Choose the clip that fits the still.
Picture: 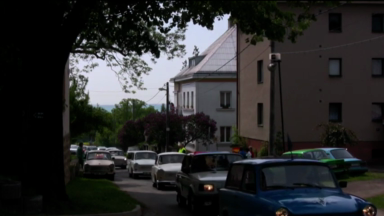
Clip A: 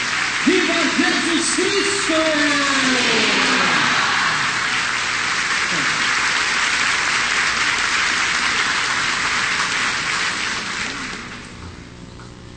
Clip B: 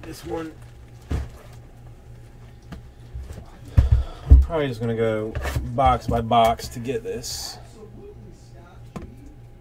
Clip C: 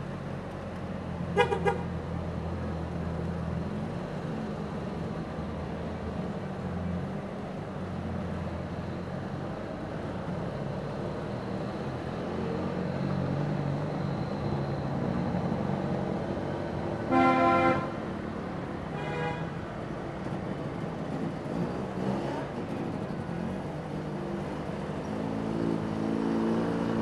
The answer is C